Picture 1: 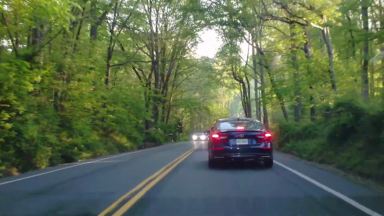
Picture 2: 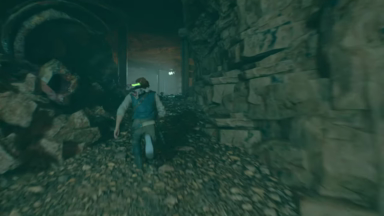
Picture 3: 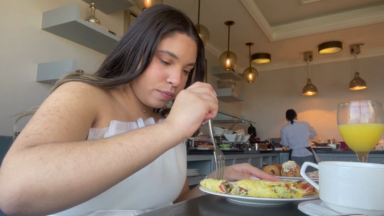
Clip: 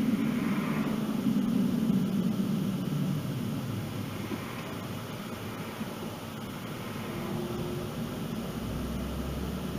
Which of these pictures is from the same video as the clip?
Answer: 1